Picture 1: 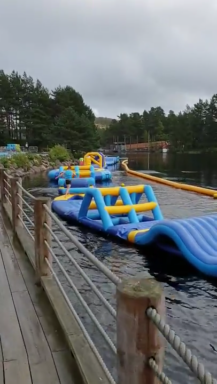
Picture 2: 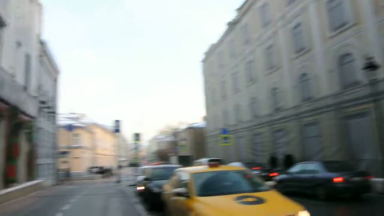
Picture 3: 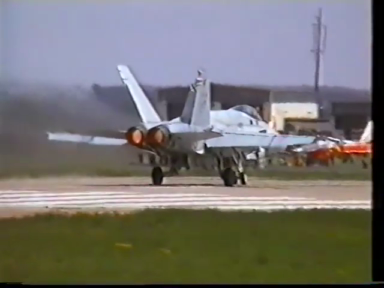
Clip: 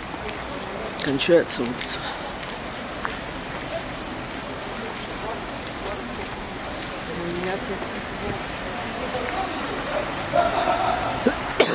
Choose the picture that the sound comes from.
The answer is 2